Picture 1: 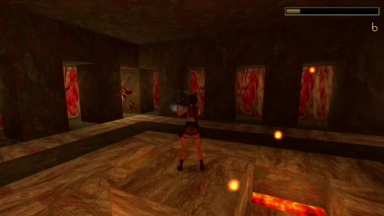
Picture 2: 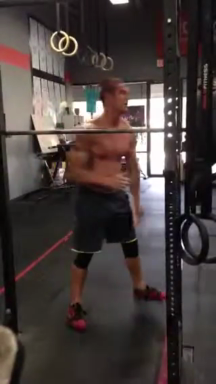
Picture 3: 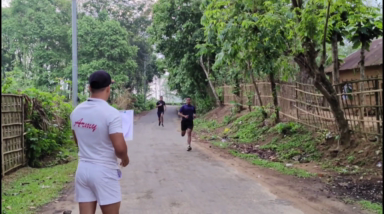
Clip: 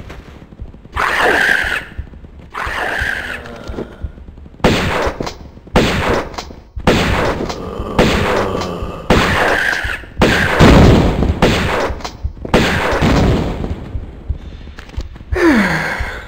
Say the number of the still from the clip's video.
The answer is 1